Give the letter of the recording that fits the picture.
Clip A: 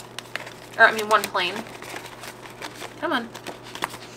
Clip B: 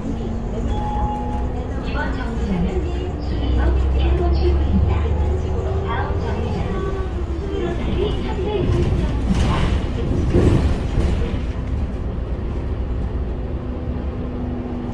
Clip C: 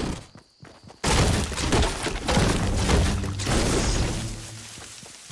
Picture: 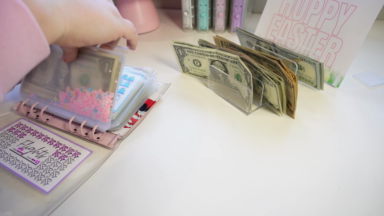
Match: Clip A